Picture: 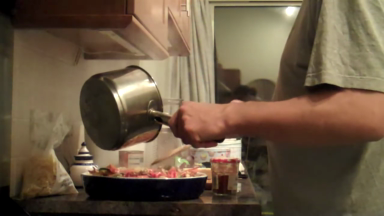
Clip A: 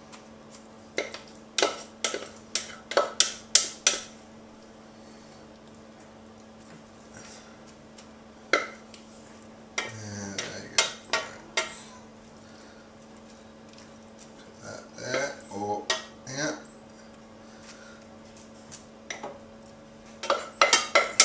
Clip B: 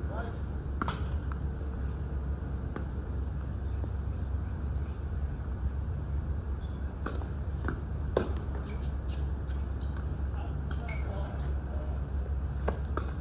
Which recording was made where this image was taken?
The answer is A